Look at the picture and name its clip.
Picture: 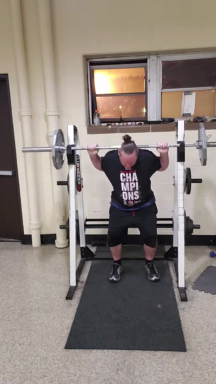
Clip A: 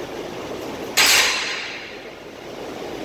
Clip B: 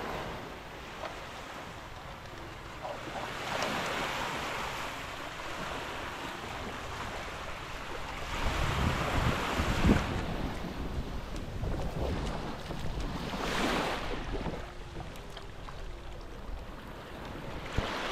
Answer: A